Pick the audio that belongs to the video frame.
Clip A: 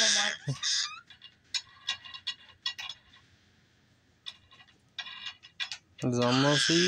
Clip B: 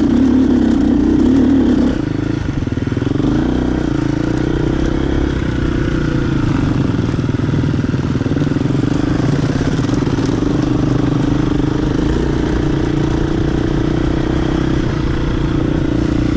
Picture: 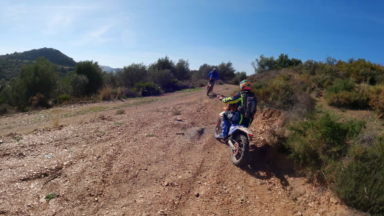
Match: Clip B